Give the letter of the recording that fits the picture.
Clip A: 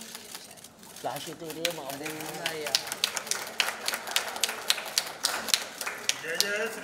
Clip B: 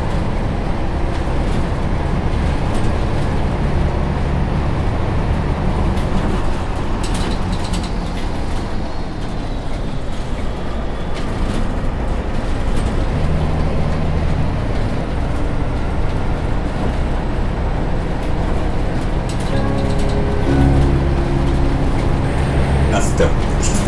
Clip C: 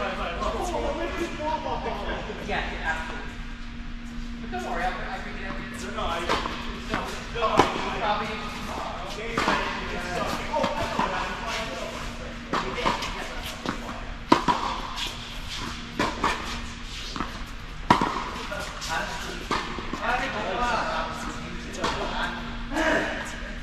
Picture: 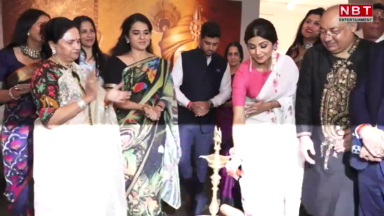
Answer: A